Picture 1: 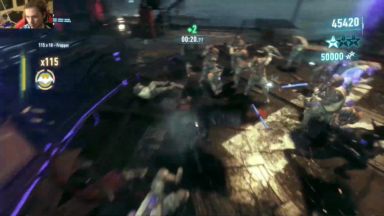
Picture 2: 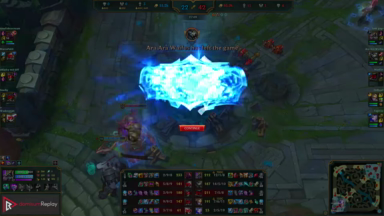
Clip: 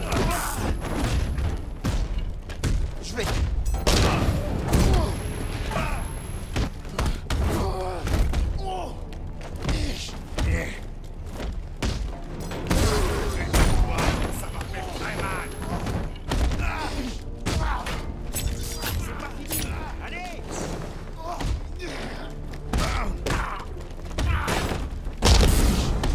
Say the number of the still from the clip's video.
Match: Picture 1